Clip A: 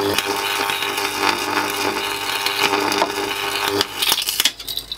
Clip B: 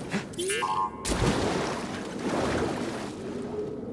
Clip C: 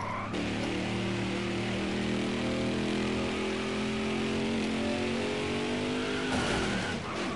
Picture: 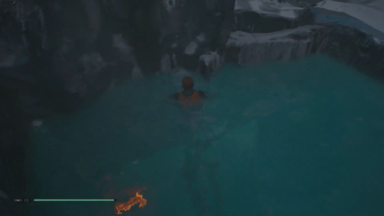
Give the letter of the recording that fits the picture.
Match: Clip B